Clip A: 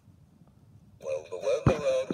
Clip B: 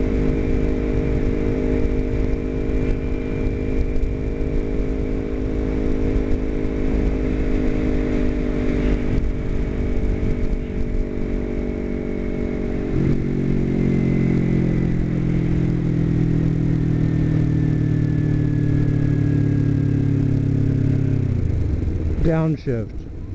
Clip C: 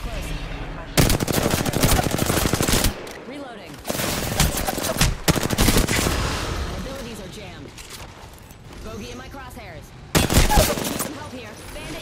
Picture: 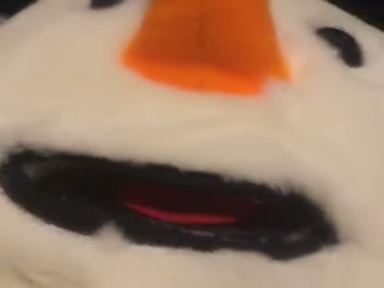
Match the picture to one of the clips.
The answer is A